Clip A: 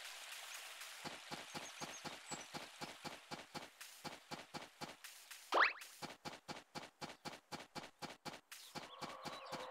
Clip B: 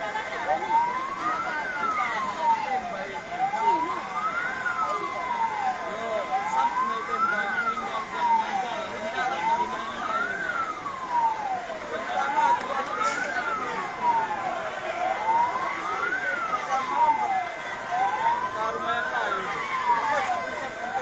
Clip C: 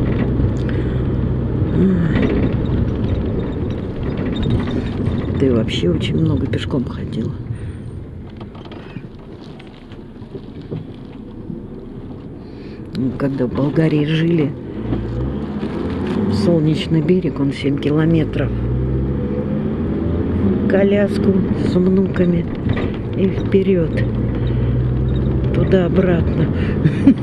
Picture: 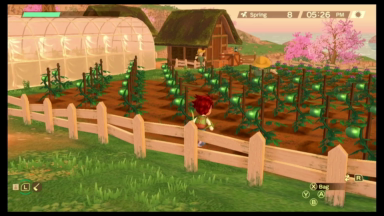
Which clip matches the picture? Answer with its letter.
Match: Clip A